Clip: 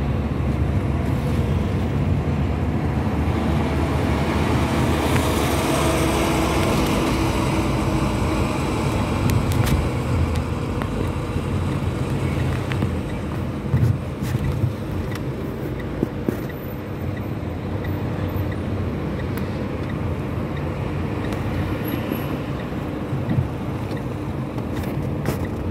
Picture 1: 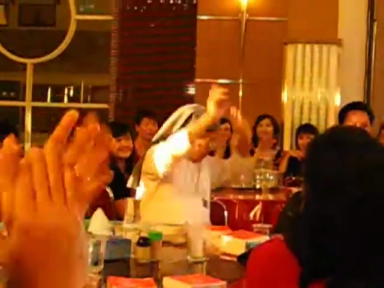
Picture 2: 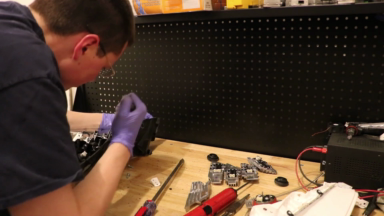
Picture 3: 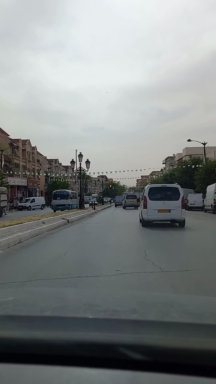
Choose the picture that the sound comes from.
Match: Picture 3